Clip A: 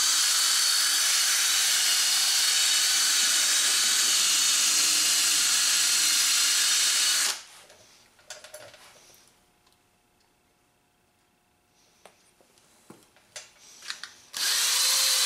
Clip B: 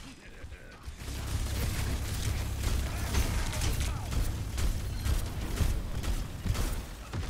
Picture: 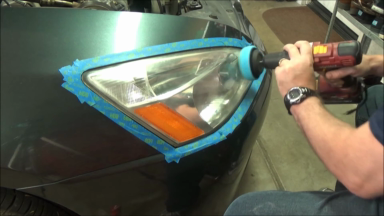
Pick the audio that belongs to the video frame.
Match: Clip A